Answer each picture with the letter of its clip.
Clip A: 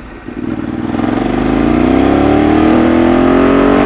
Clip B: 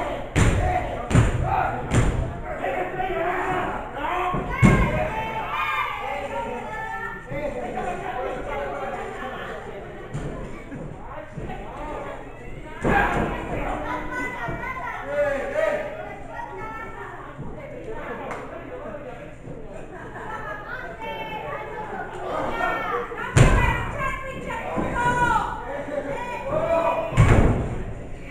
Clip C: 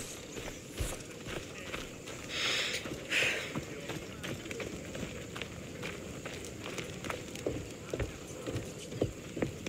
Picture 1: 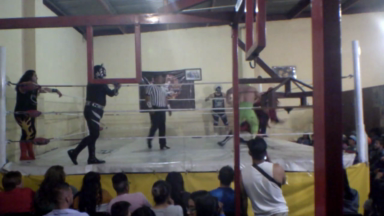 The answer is B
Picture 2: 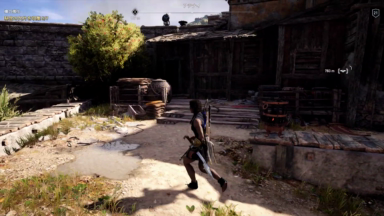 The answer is C